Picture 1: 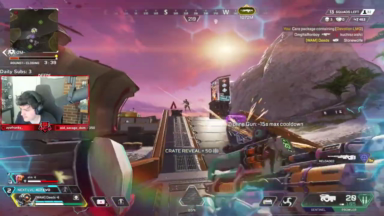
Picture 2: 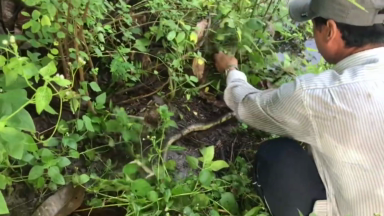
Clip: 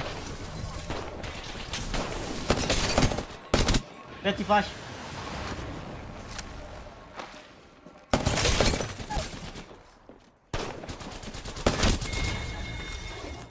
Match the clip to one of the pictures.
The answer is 1